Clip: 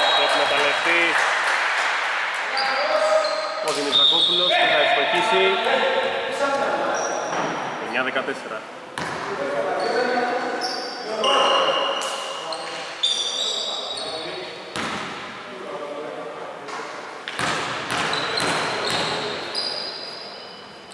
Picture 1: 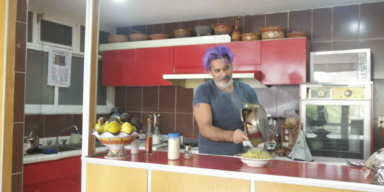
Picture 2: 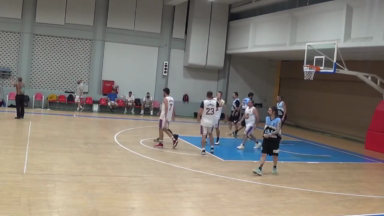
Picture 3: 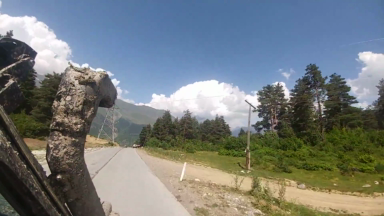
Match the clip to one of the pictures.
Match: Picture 2